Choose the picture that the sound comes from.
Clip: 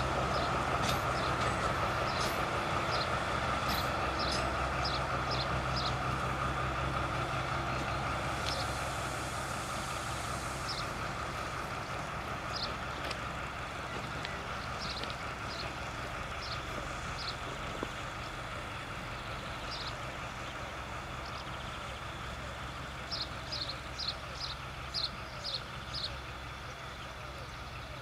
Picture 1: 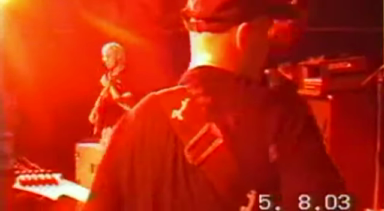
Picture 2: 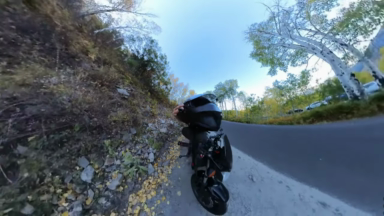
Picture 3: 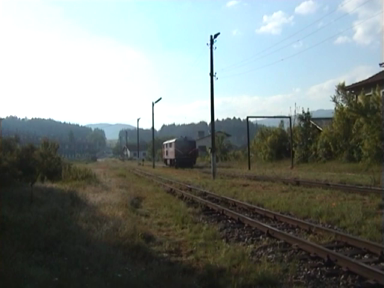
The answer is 3